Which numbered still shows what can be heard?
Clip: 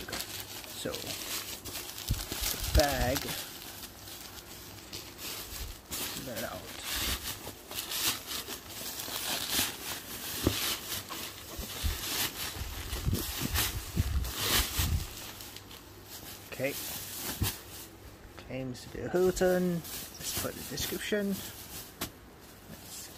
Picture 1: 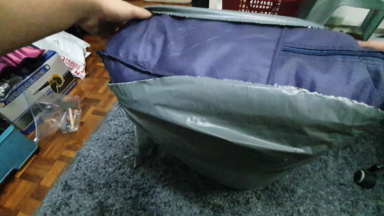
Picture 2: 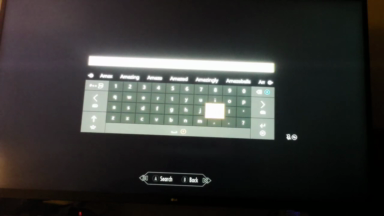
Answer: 1